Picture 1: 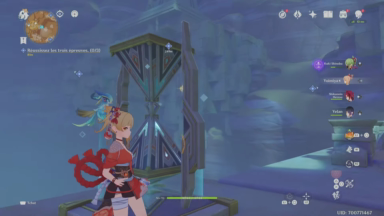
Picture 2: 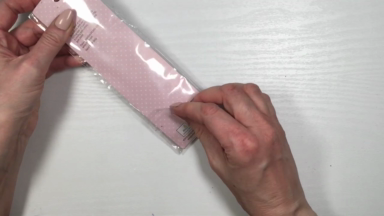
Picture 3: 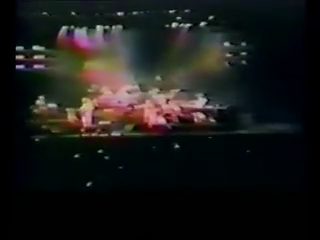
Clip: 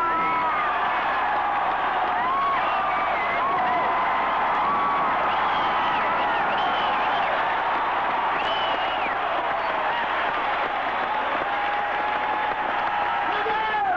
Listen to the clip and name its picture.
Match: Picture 3